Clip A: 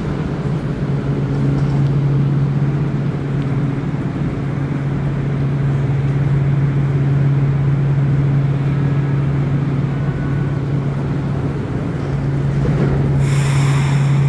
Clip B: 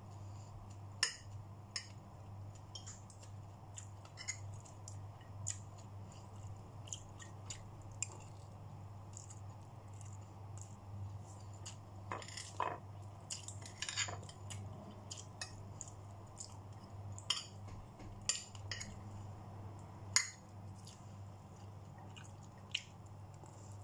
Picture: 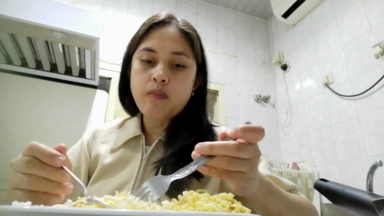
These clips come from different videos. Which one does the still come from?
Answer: B